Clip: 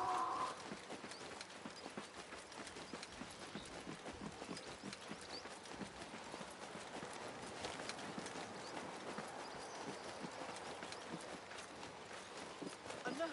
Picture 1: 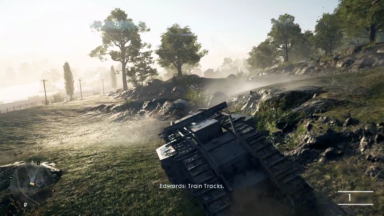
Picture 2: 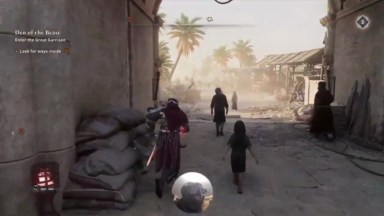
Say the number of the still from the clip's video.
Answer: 2